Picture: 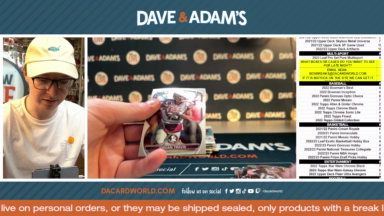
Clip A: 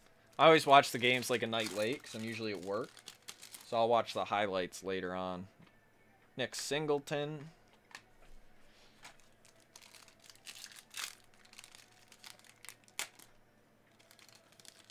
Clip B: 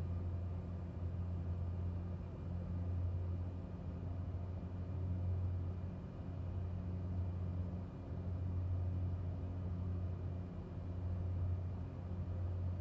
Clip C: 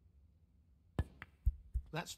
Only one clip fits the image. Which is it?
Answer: A